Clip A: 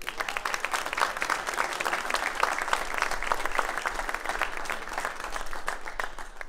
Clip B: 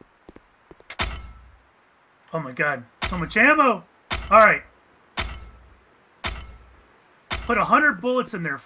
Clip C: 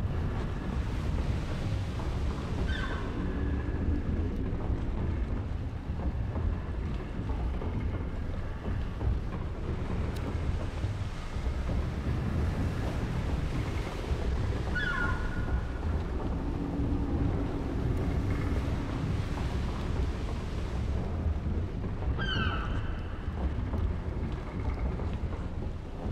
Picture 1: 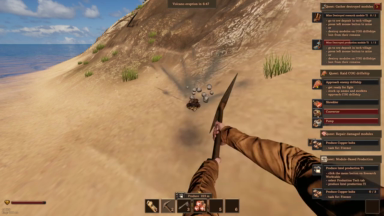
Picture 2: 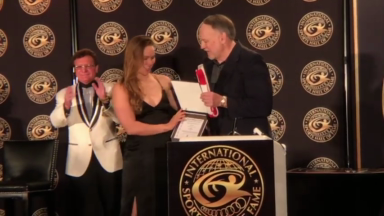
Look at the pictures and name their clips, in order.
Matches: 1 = B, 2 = A